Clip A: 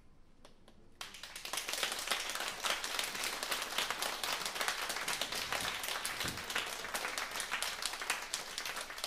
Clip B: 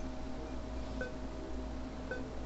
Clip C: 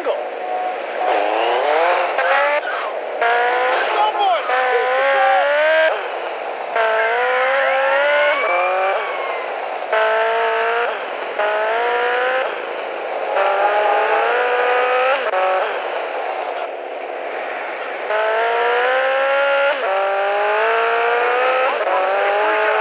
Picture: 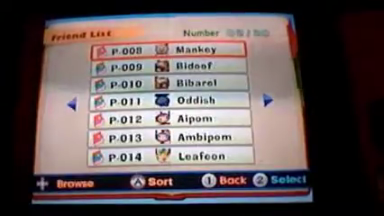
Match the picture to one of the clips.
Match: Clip B